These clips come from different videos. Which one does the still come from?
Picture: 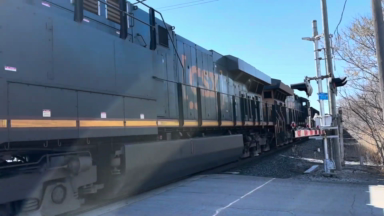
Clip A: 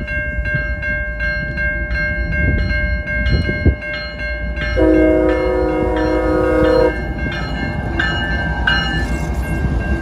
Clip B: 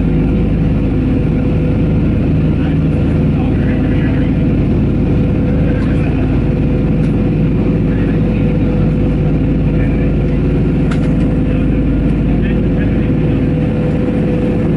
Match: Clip A